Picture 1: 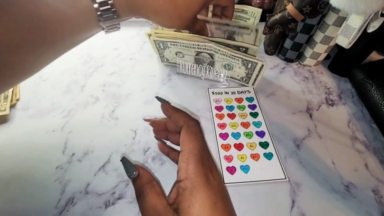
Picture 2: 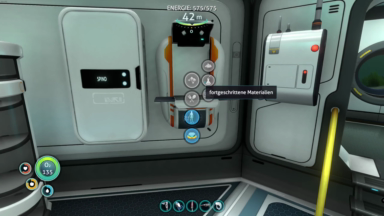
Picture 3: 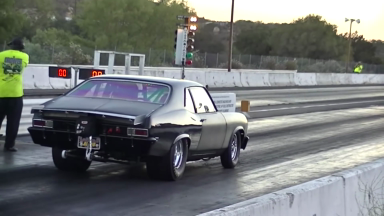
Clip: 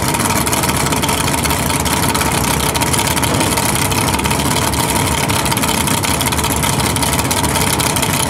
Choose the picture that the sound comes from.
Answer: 3